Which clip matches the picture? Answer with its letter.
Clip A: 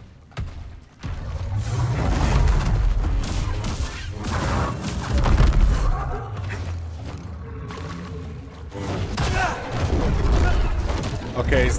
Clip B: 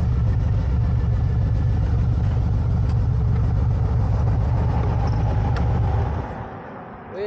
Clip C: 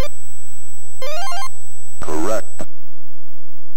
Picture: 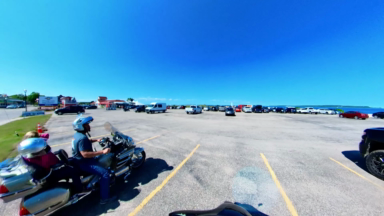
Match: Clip B